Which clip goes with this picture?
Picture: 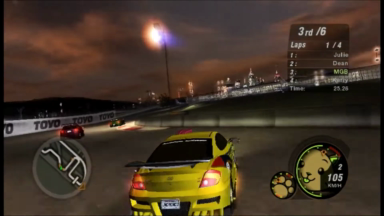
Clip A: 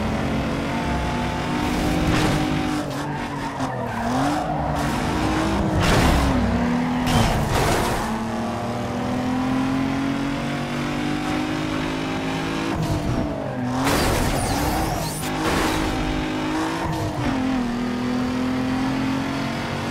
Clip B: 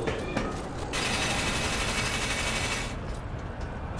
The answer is A